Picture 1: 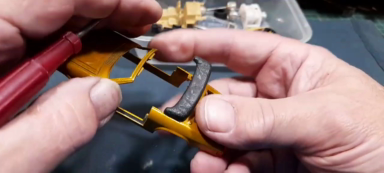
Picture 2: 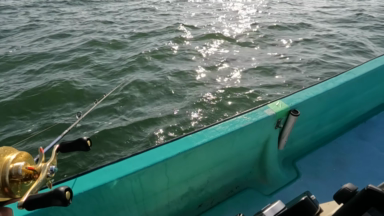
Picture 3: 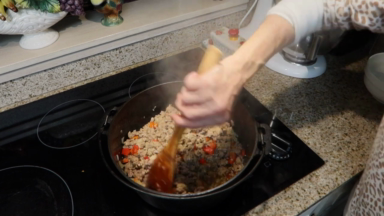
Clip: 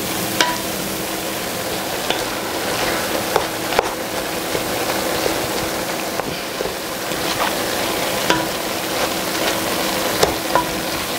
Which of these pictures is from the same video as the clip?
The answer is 3